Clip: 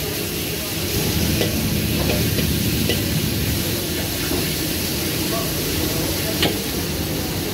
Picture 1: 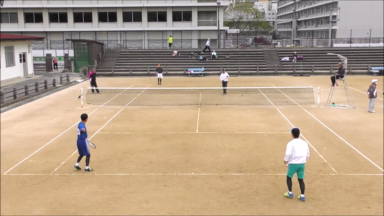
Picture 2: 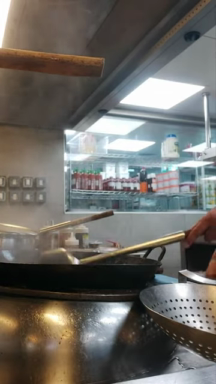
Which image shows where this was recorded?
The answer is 2